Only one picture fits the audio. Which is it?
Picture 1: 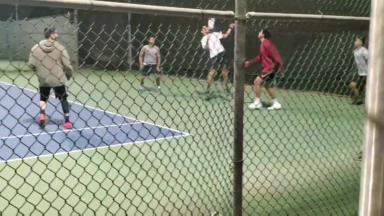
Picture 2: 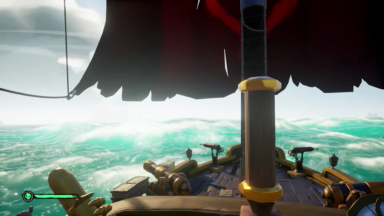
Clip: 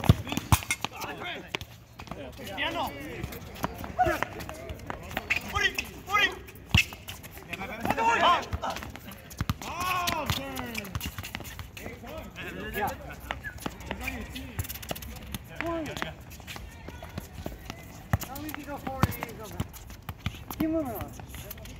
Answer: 1